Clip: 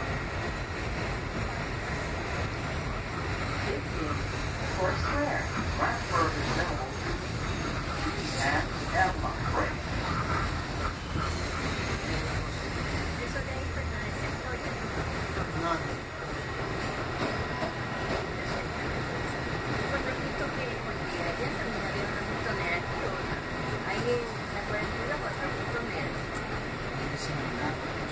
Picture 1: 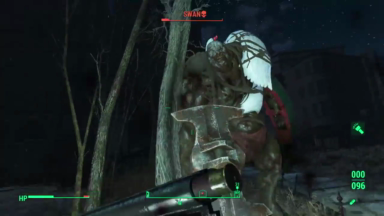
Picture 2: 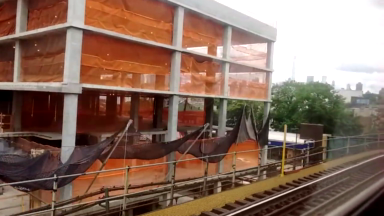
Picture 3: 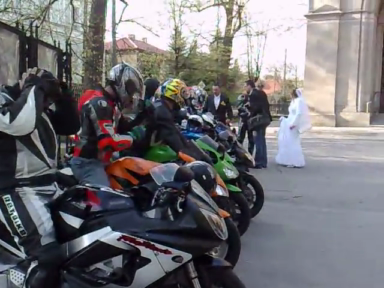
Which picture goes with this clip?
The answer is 2